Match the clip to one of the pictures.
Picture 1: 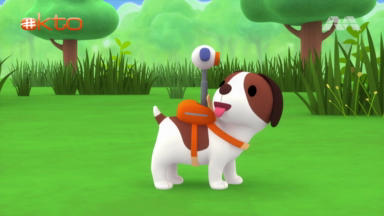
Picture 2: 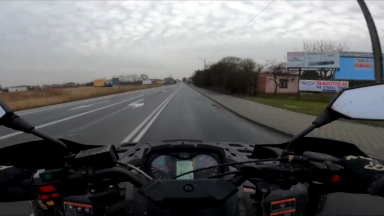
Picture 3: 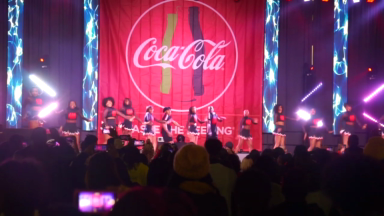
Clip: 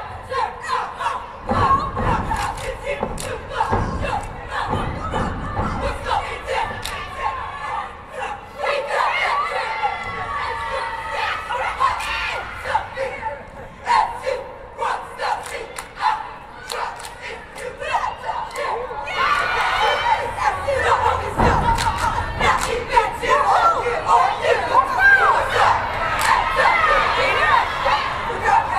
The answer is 3